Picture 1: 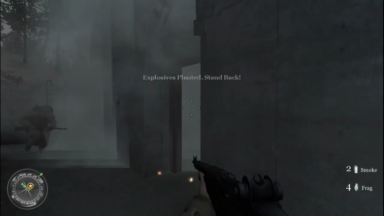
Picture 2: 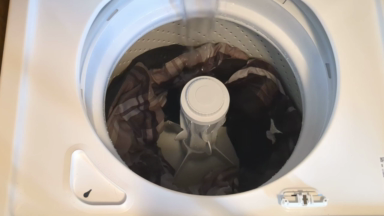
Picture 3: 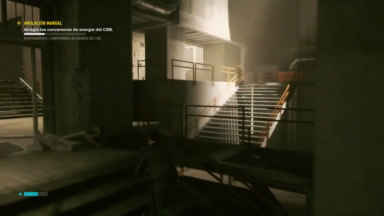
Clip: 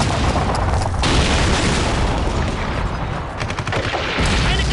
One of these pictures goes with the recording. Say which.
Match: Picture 1